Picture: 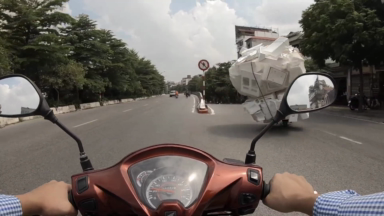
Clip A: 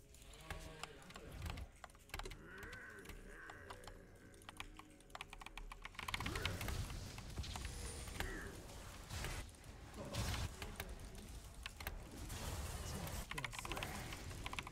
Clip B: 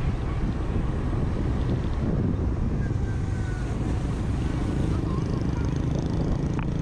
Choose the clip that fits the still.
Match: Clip B